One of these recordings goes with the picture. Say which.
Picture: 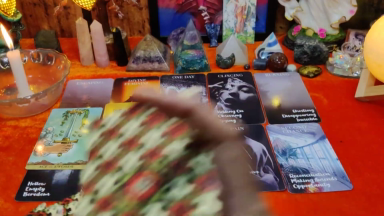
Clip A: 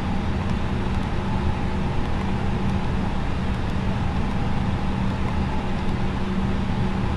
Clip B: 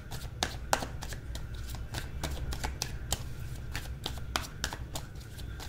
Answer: B